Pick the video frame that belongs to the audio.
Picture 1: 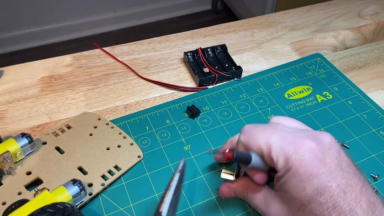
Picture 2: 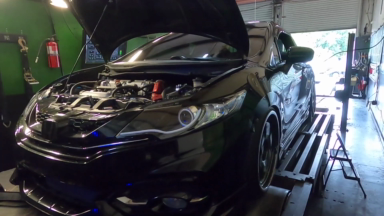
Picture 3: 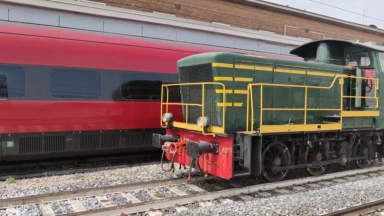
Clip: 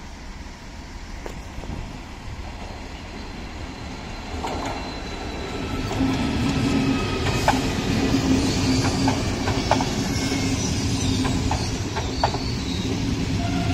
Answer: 3